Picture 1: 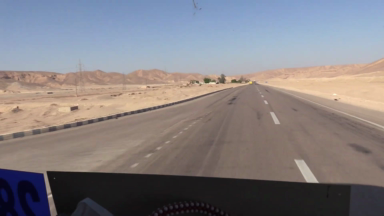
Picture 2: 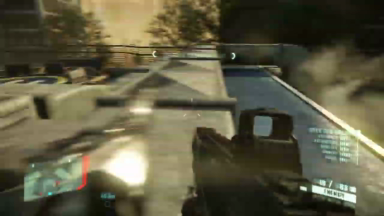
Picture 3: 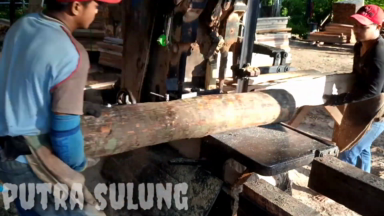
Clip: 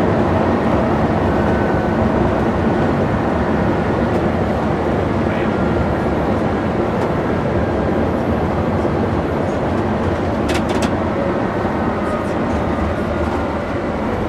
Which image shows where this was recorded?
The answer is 1